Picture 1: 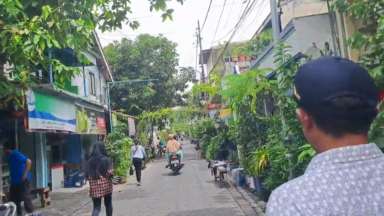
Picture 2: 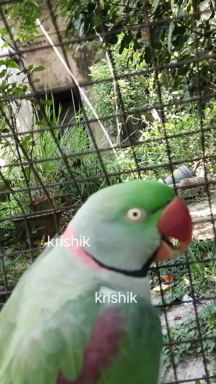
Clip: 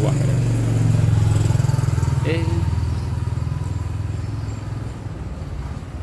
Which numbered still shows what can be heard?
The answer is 1